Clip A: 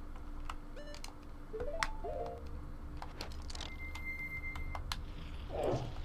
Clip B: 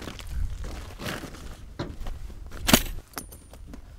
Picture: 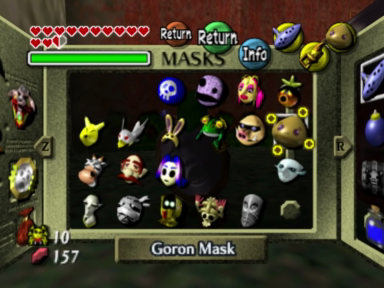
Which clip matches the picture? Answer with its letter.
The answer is A